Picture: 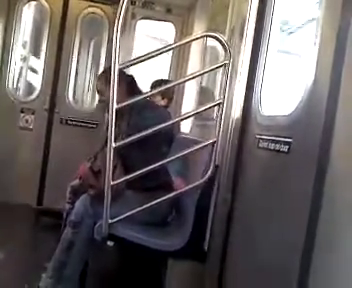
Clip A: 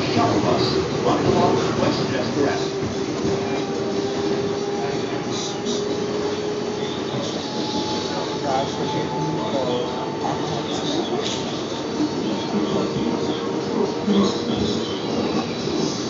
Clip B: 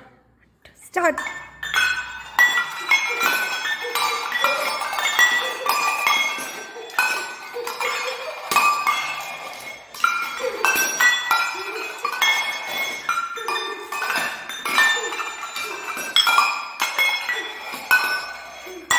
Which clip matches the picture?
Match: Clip A